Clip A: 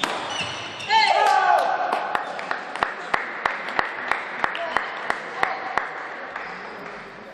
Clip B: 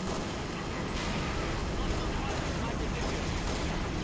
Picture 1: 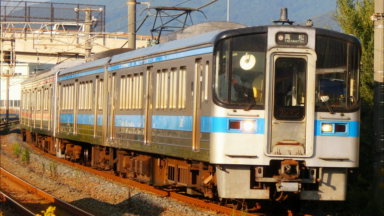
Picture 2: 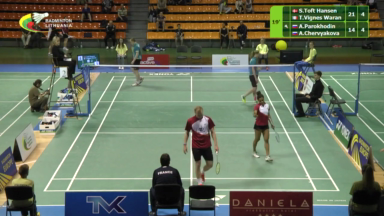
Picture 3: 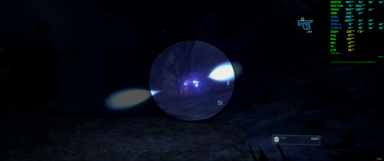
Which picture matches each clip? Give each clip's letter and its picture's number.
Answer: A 2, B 3